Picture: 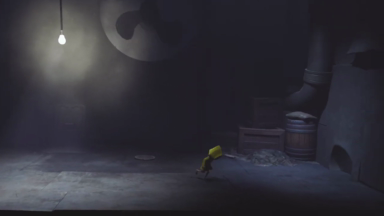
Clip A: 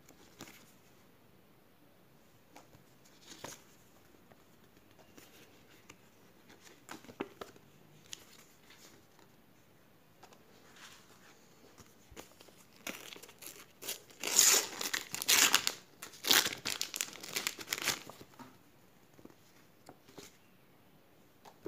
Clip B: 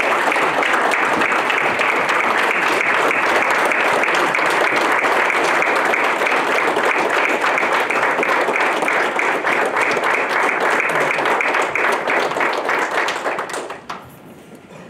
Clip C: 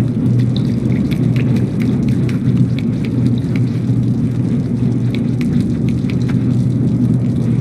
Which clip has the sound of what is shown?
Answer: C